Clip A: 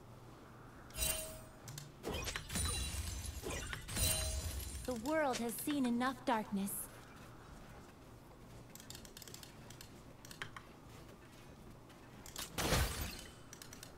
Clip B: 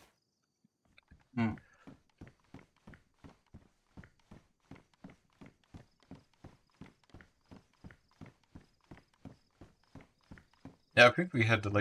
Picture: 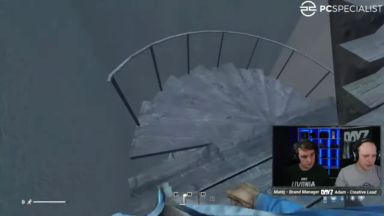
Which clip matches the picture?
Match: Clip B